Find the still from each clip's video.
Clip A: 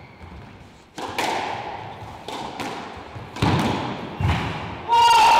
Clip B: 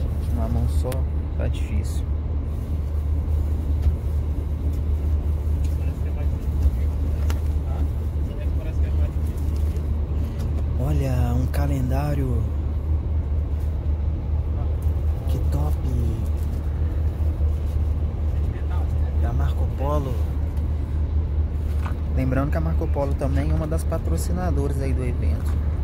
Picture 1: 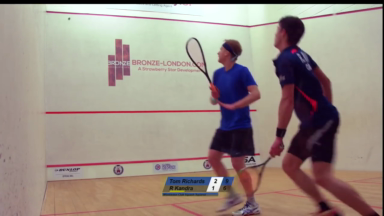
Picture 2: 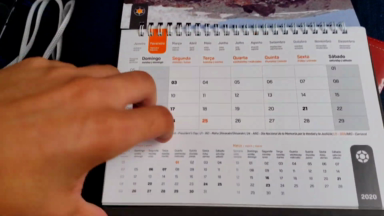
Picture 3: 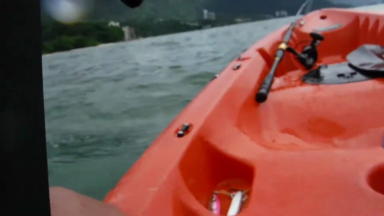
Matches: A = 1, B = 2